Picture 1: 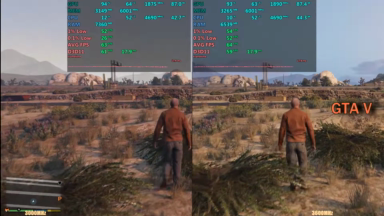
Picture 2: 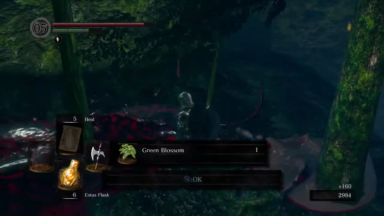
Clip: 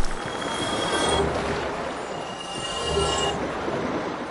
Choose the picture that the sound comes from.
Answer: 2